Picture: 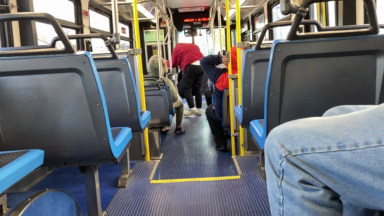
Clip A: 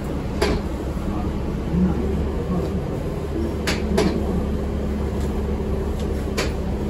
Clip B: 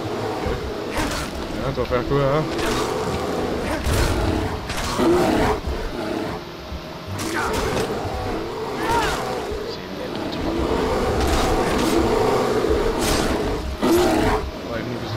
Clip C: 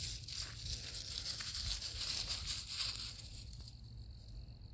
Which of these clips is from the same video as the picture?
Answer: A